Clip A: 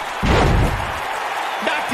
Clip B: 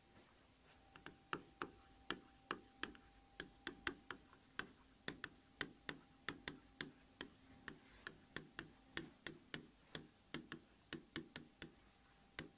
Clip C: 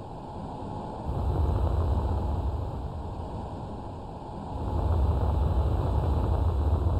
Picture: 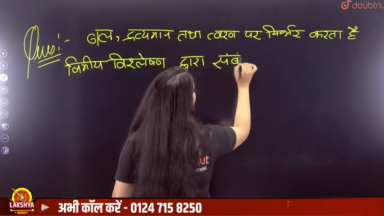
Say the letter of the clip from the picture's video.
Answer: B